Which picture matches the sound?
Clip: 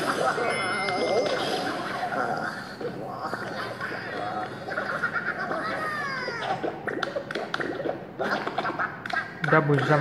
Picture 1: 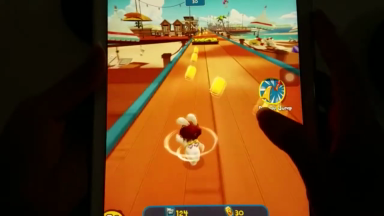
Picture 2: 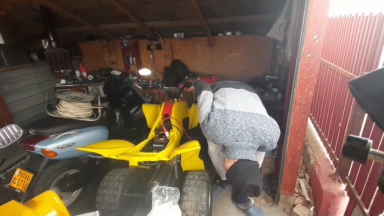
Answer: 1